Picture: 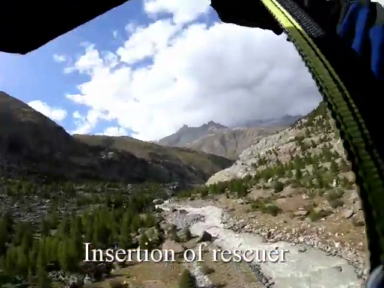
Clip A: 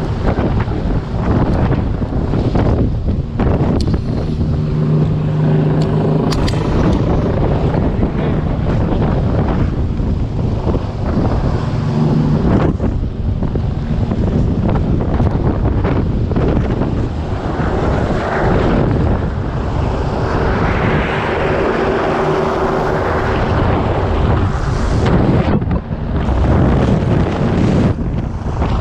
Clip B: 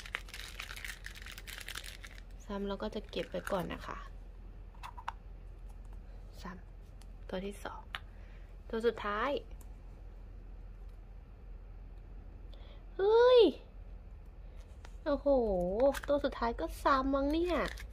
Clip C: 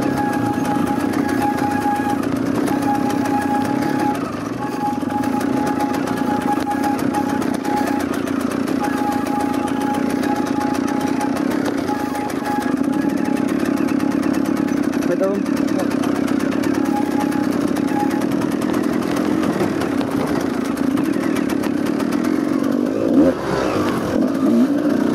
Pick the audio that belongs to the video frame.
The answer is A